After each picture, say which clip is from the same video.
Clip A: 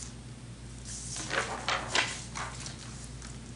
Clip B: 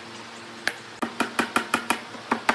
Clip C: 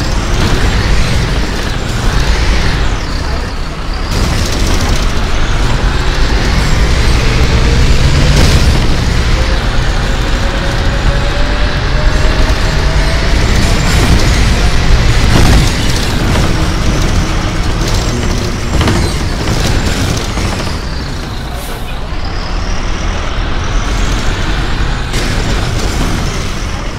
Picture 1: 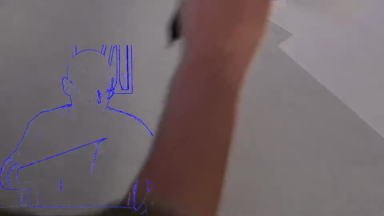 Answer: A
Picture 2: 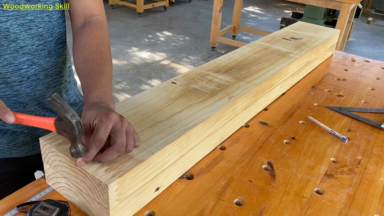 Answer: B